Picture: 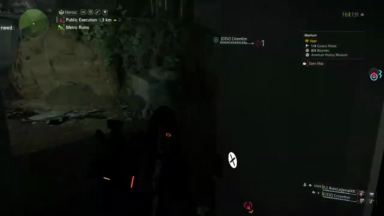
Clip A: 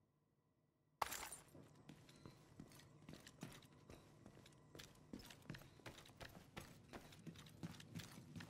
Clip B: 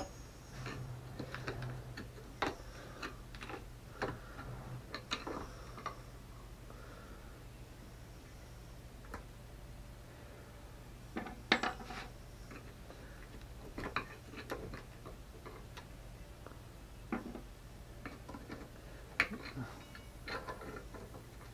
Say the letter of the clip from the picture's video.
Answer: A